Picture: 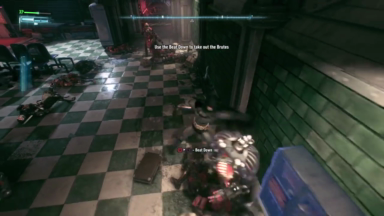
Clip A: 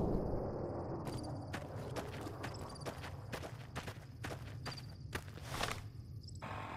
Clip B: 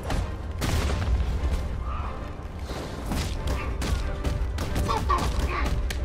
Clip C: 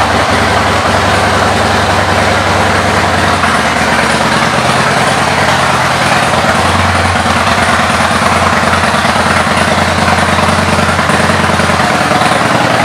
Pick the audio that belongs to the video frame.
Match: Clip B